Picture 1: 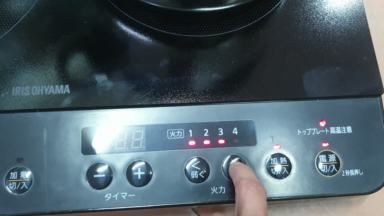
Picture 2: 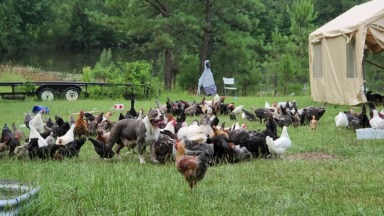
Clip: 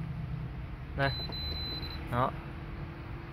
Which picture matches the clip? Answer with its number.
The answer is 1